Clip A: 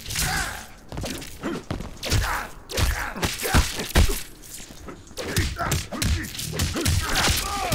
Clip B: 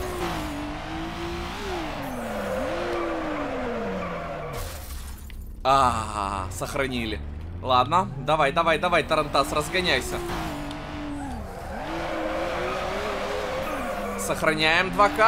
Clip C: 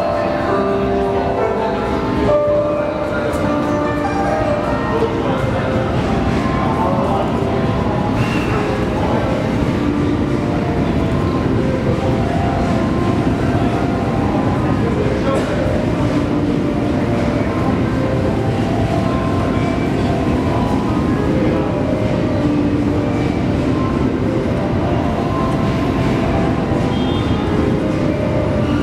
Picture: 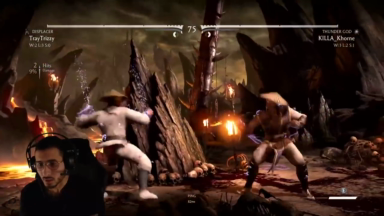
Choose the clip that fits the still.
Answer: A